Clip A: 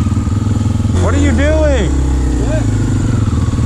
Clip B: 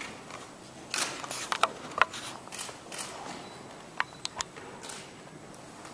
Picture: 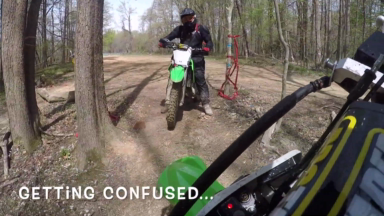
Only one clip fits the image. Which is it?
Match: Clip A